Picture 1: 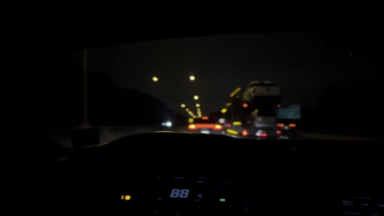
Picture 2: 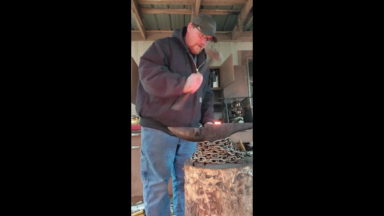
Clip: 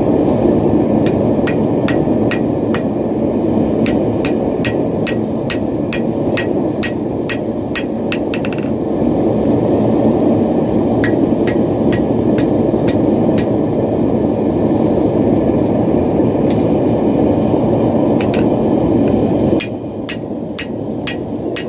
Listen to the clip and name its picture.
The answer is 2